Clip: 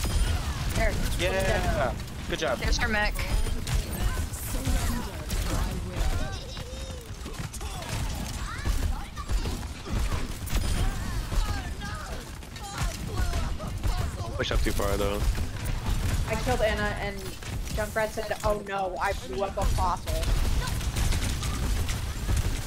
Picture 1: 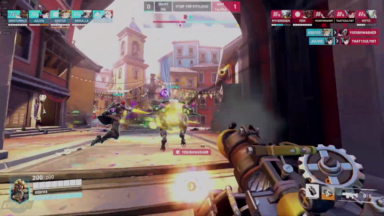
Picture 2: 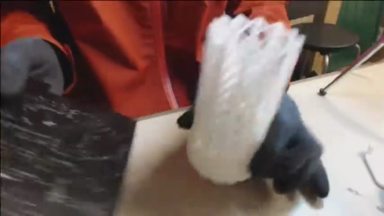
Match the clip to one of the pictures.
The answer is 1